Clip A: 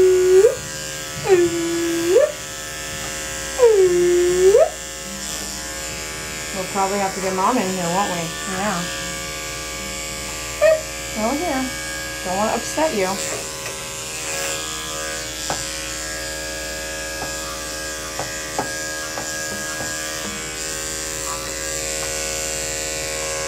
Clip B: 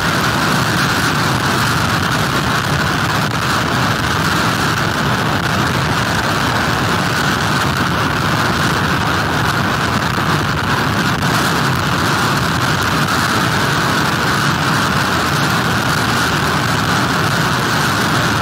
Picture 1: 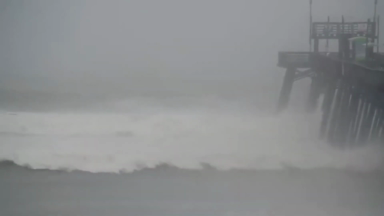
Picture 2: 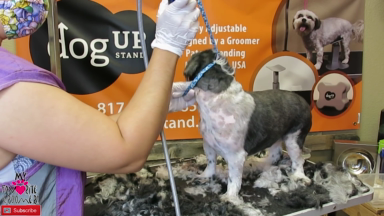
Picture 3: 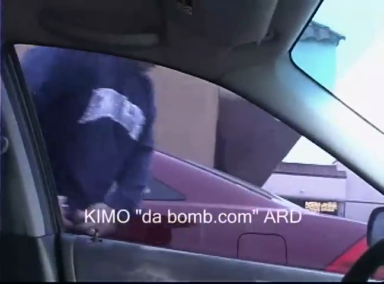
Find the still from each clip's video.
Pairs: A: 2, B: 1